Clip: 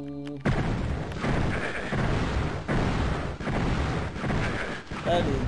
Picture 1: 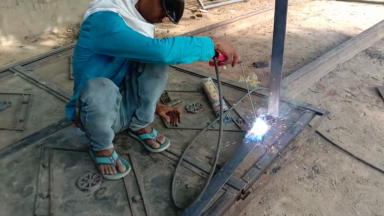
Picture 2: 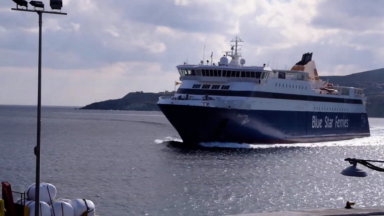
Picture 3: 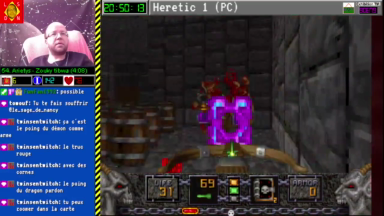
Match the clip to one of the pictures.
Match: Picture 3